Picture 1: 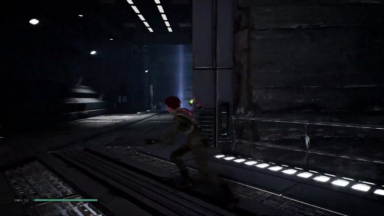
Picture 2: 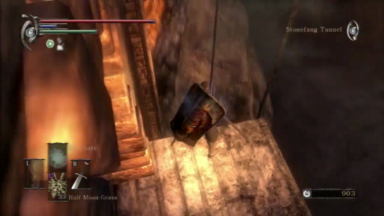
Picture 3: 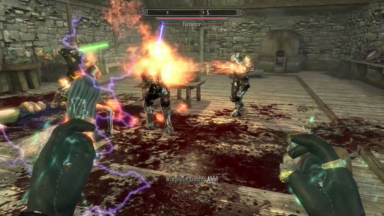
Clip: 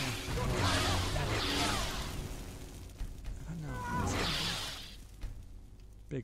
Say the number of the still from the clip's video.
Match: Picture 3